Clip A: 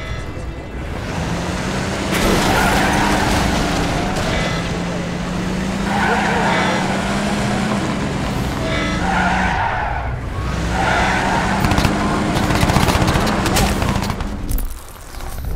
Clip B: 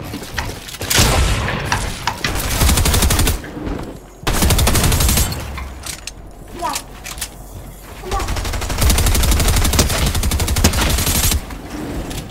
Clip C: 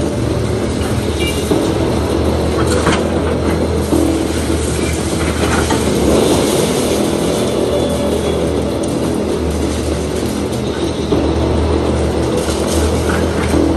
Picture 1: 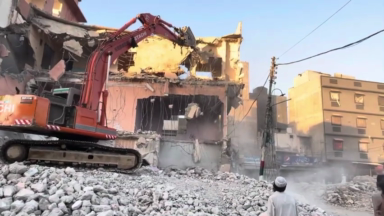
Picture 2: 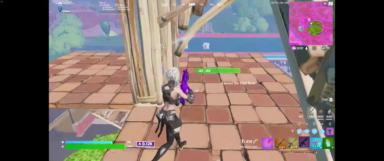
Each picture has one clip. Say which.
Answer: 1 C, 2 B